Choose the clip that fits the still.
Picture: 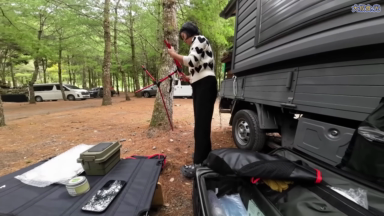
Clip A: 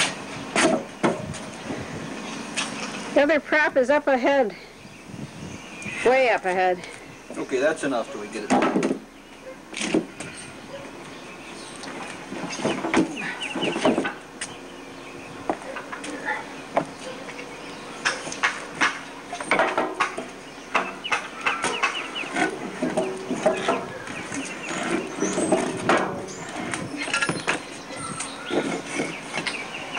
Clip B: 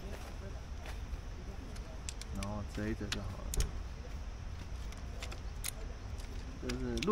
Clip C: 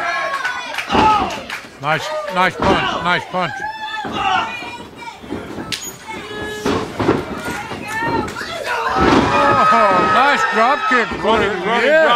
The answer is B